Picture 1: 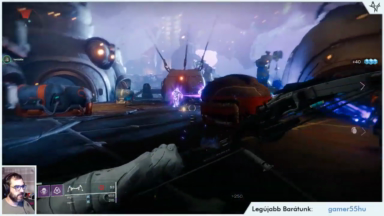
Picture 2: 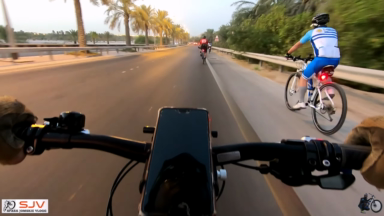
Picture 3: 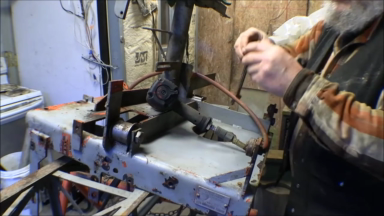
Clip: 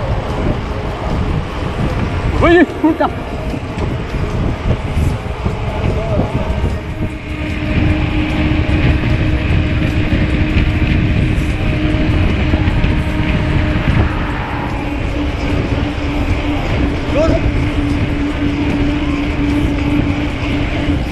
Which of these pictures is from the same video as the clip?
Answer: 2